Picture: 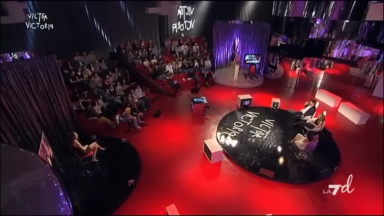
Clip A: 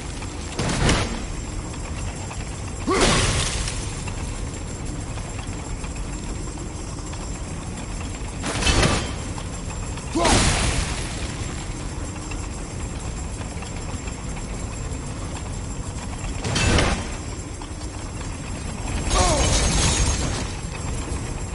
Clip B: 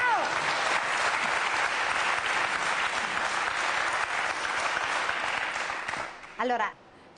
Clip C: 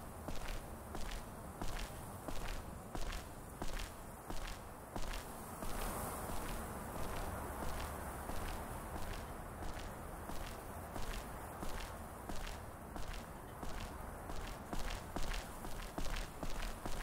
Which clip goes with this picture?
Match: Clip B